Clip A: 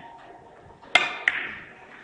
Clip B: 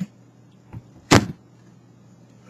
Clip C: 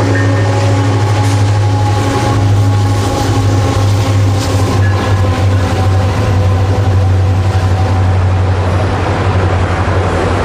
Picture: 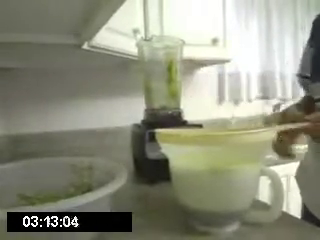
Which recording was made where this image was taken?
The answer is B